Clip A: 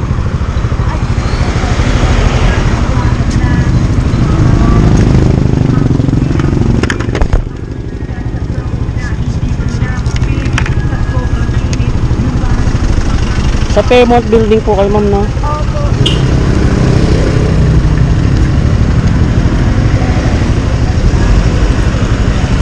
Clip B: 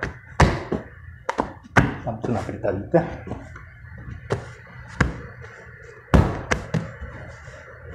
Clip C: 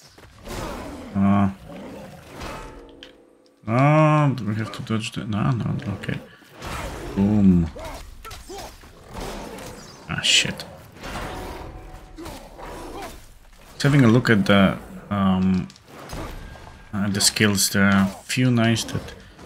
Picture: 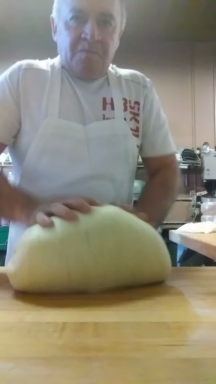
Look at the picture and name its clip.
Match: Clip B